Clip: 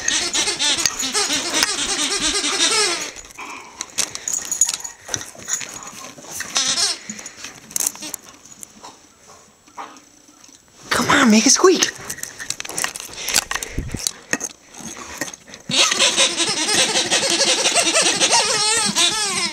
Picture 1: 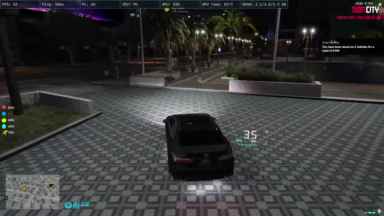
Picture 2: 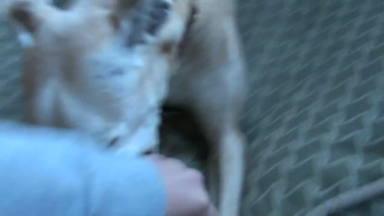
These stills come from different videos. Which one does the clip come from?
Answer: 2